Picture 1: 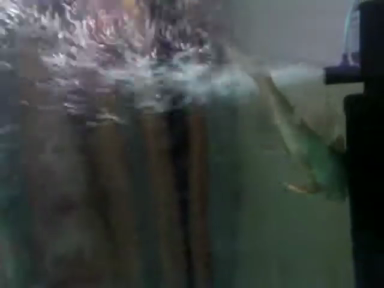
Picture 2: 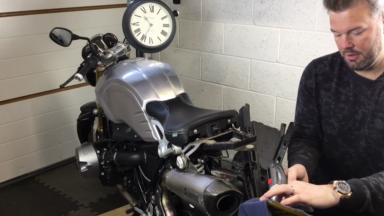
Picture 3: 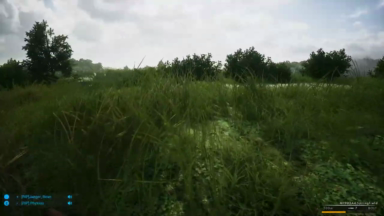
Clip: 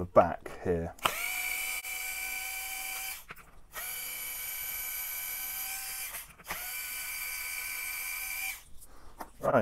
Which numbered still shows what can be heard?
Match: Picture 2